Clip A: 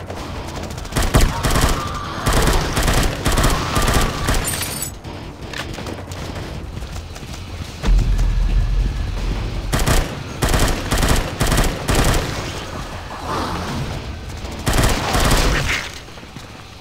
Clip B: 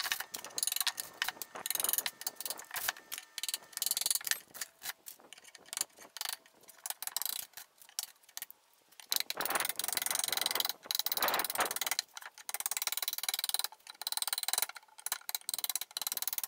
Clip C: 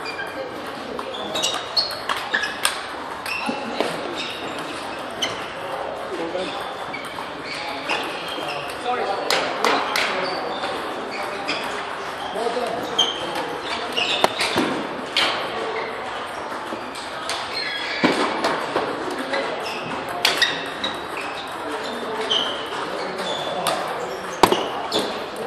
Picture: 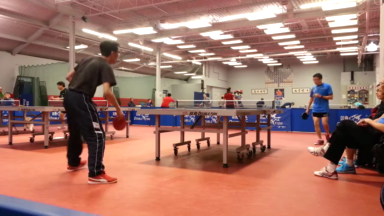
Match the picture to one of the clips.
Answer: C